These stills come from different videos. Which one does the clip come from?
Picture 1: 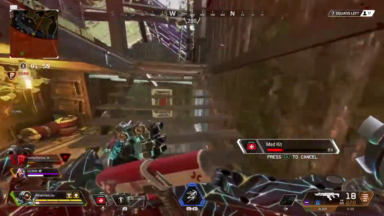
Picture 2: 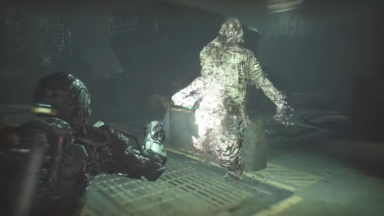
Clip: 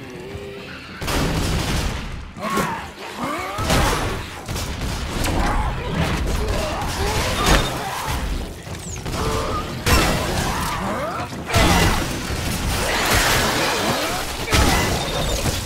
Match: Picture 2